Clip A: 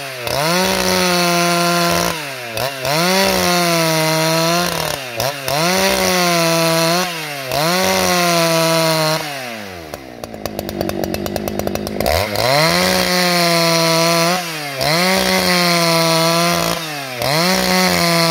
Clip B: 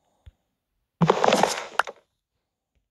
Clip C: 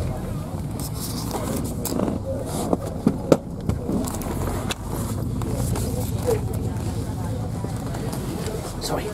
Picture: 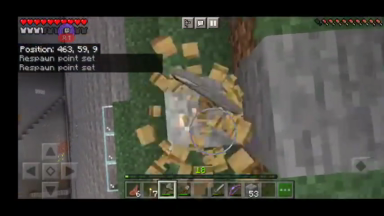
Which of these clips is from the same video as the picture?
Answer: B